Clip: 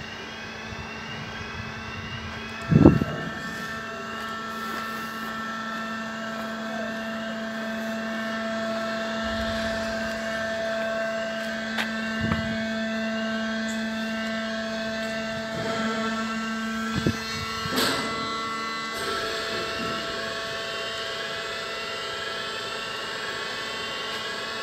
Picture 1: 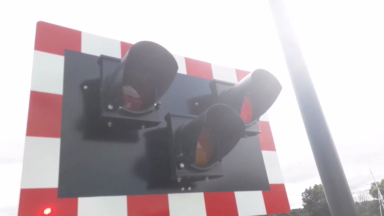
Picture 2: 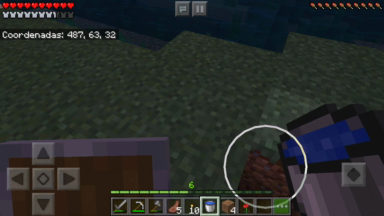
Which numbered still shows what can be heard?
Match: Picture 1